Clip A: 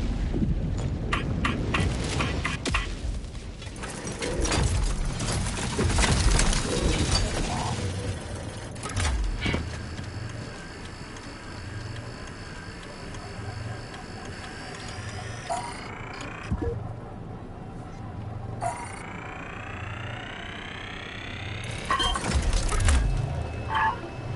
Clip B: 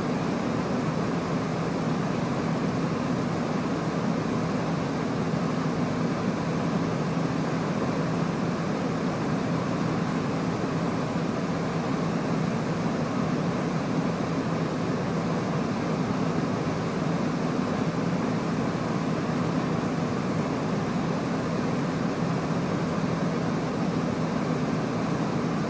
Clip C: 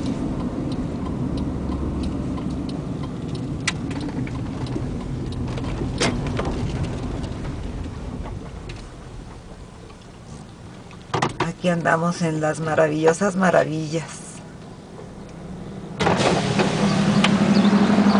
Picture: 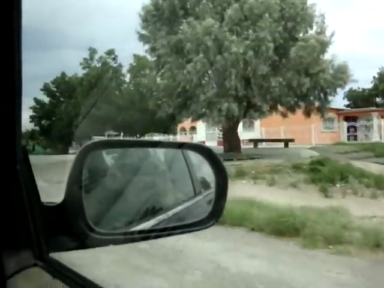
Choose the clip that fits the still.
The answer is C